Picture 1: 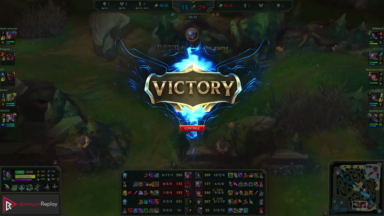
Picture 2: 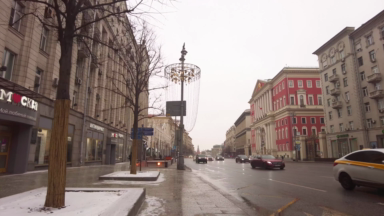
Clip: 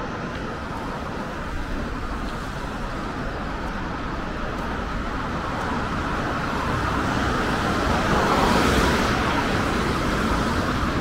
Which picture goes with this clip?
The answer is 2